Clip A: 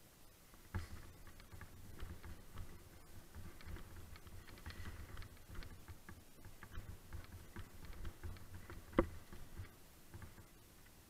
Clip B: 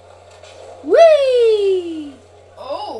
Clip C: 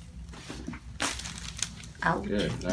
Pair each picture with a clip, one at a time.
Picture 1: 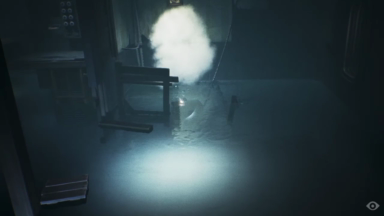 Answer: B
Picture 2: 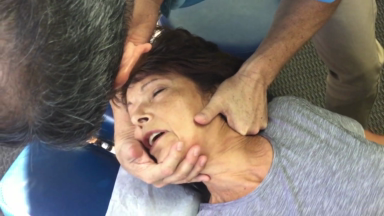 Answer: C